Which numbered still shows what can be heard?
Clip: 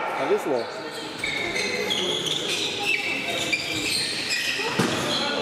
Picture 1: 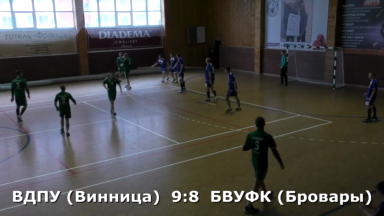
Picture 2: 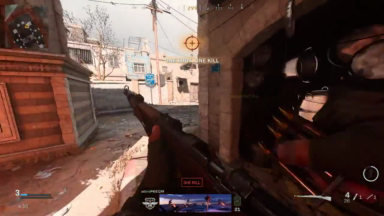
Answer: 1